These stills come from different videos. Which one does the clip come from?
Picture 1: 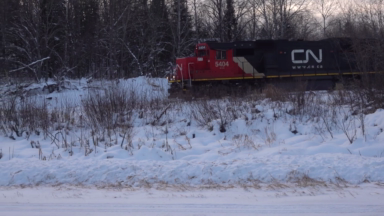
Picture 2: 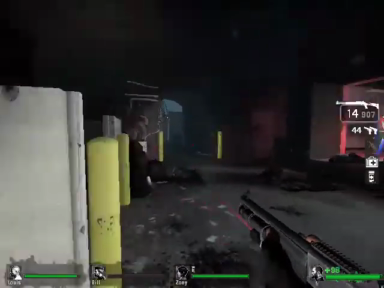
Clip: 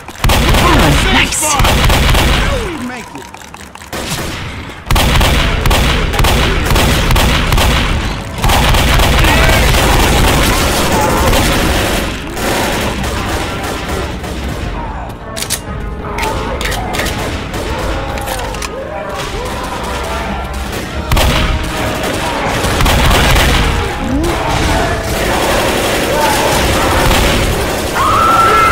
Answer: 2